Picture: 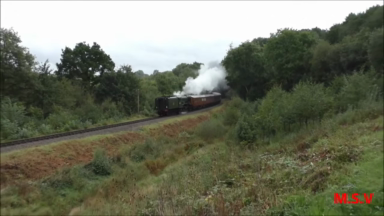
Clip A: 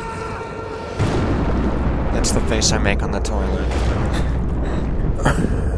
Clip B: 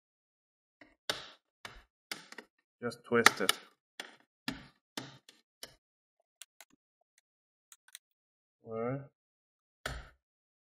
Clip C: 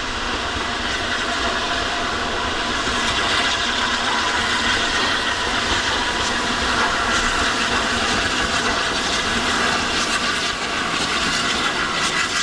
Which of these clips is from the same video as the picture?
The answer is C